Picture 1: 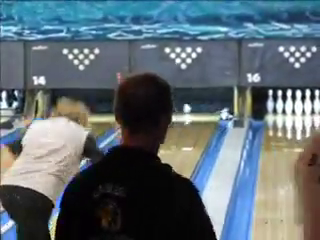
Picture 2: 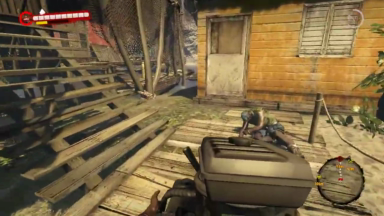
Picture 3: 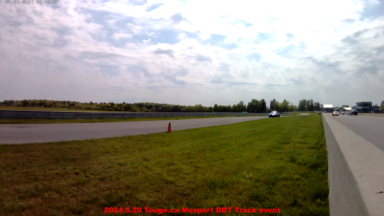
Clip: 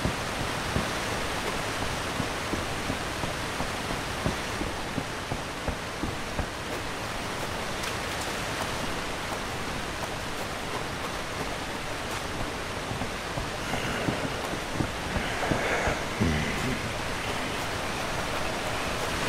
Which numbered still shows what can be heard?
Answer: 2